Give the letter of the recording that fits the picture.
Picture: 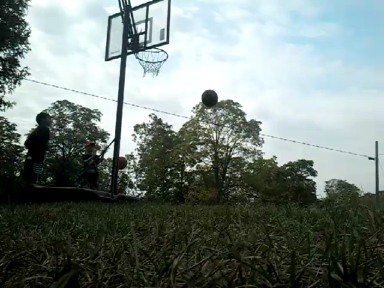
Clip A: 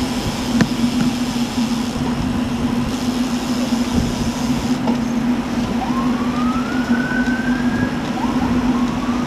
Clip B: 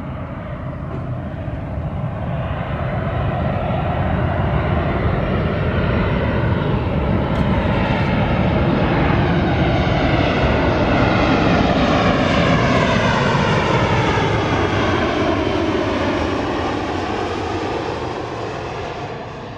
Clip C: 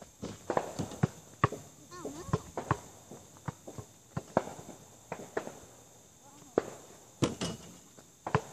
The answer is C